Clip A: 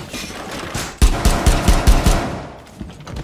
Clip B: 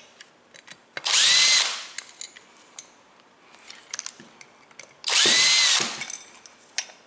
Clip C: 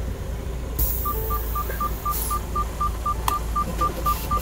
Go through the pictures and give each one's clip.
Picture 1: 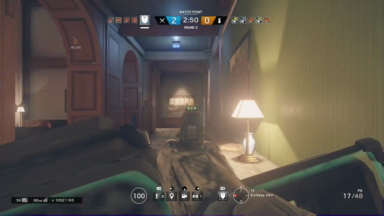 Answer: A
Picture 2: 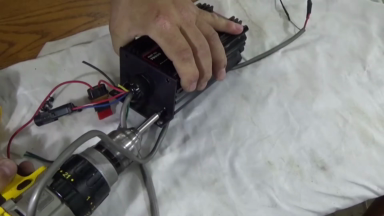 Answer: B